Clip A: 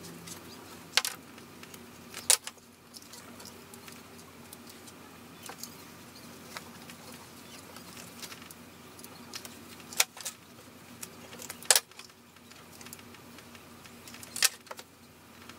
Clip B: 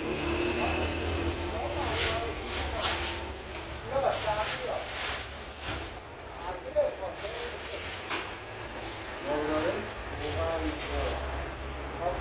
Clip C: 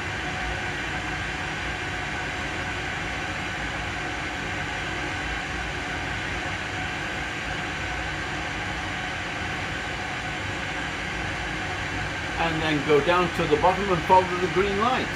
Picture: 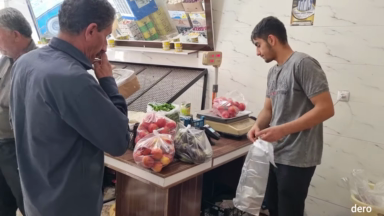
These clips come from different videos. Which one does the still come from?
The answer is B